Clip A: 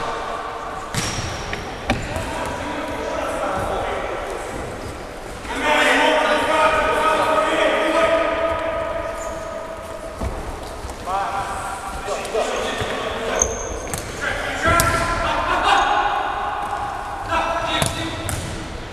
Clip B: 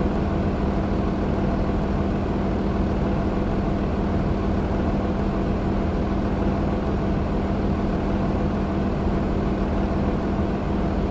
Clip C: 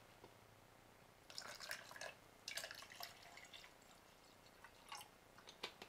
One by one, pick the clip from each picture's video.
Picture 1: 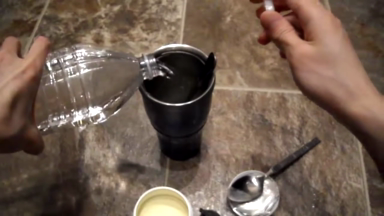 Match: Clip C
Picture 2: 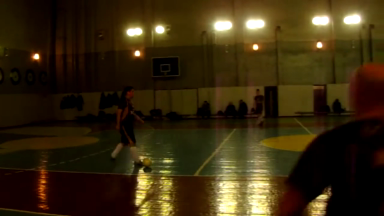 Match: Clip A